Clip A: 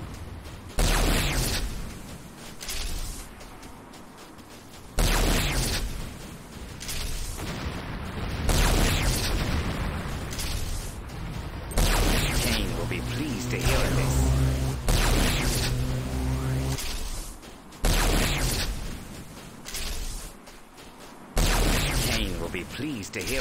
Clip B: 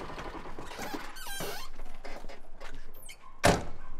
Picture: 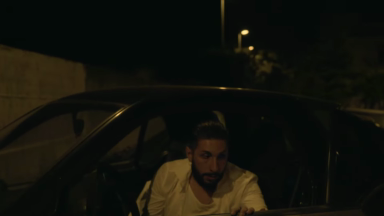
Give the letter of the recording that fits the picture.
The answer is B